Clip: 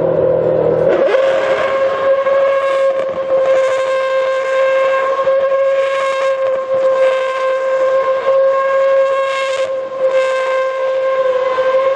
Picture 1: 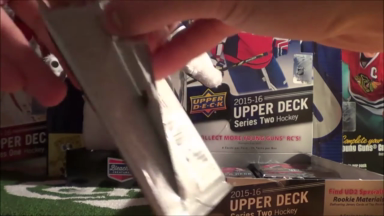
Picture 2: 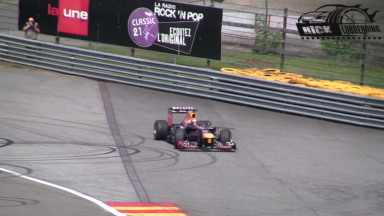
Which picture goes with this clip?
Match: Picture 2